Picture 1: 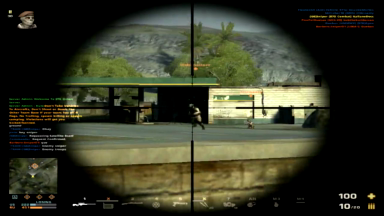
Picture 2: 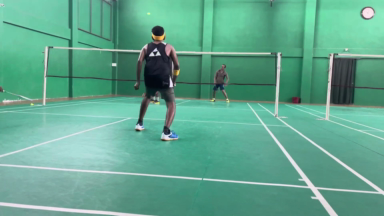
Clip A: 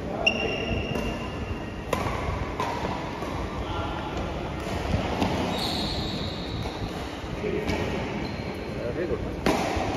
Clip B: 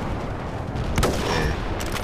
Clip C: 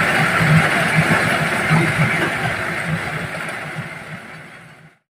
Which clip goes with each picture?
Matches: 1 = B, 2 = A